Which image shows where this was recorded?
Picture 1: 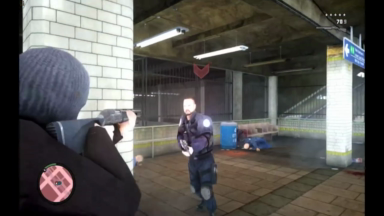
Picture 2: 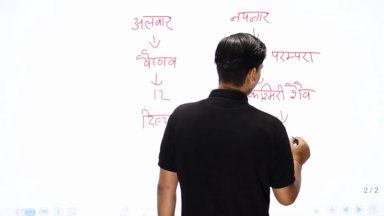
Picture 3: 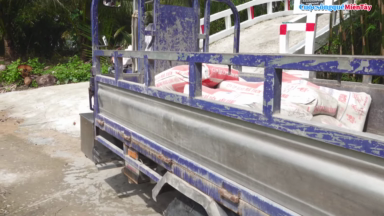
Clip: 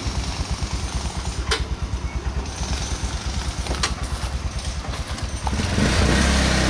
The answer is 3